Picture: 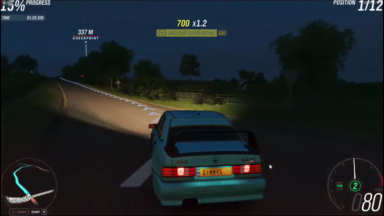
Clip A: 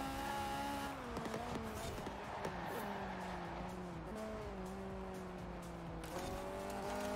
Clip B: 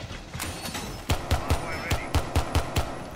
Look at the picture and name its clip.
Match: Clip A